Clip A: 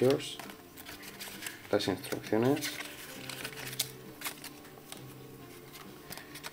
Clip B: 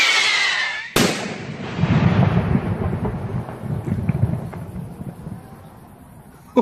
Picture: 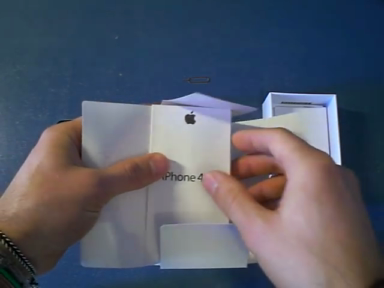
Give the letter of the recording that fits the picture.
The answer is A